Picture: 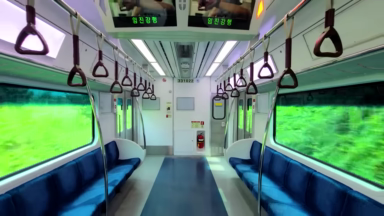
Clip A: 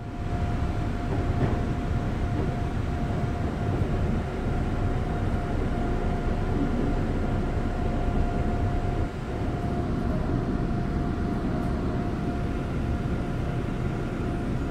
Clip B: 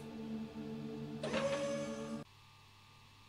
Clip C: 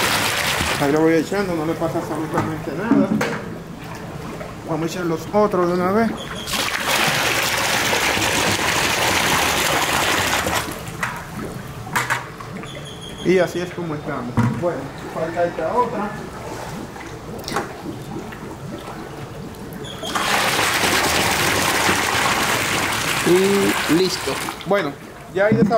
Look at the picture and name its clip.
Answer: A